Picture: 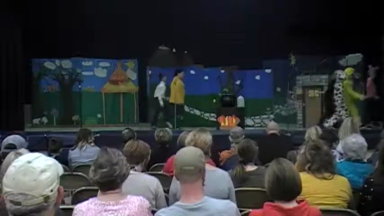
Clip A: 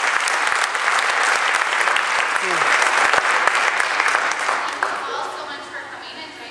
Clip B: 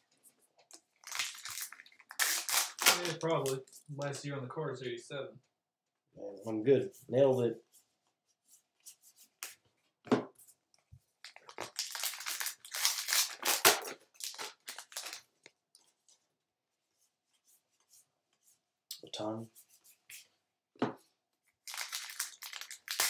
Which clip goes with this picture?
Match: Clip A